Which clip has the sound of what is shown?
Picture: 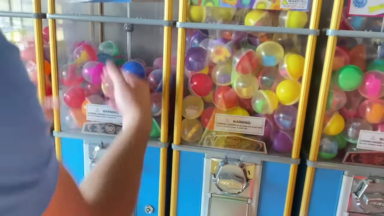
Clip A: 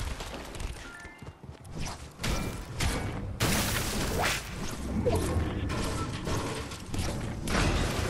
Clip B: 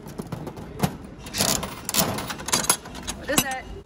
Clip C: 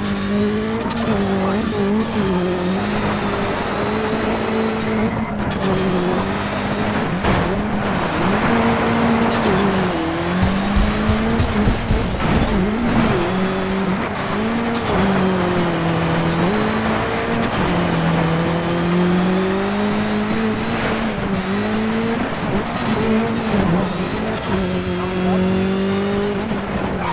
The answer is B